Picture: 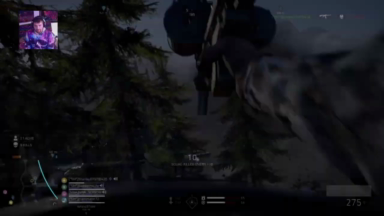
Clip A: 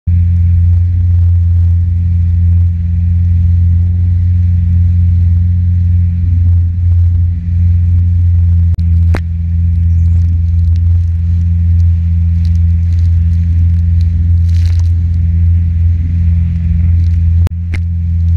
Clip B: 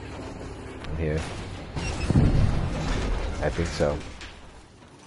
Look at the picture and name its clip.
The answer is B